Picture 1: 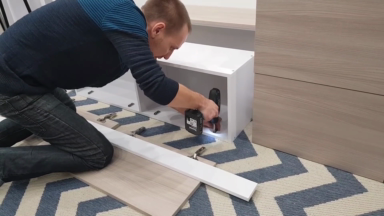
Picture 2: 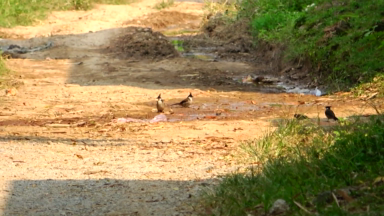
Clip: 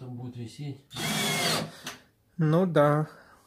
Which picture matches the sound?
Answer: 1